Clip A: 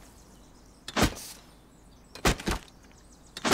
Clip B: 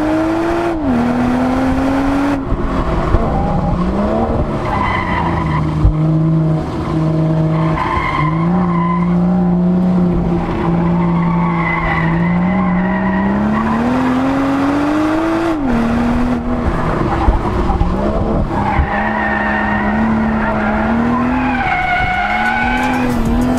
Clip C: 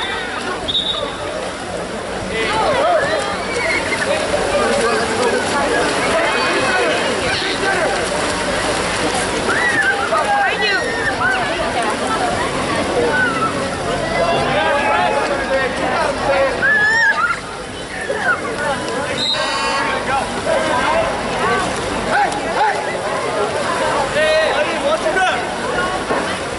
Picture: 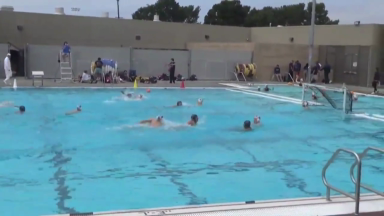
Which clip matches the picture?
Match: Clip C